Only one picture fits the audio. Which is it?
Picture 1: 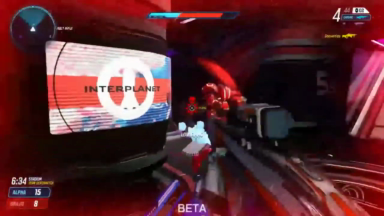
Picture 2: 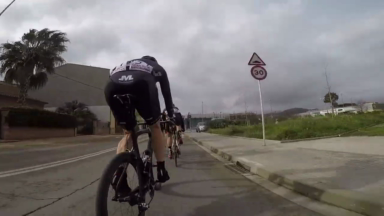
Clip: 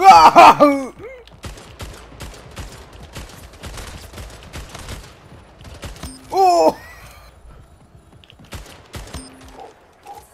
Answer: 1